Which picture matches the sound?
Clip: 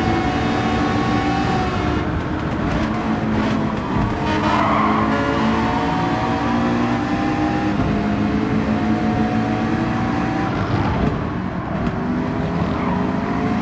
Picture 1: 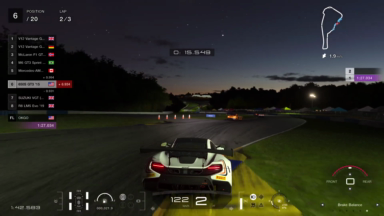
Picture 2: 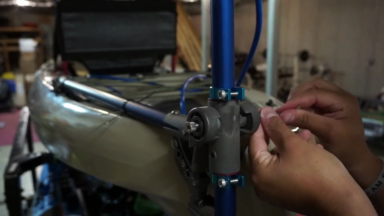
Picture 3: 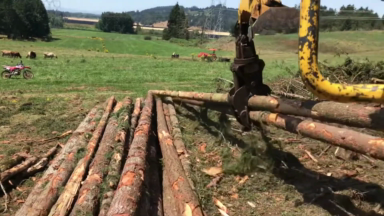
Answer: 1